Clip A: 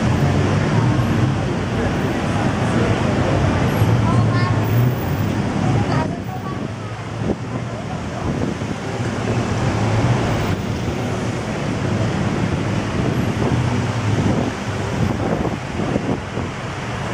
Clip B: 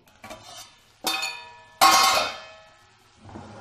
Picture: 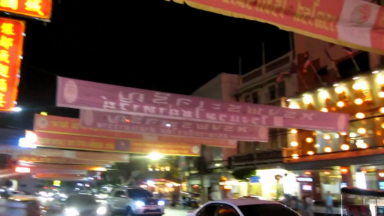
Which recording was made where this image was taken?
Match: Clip A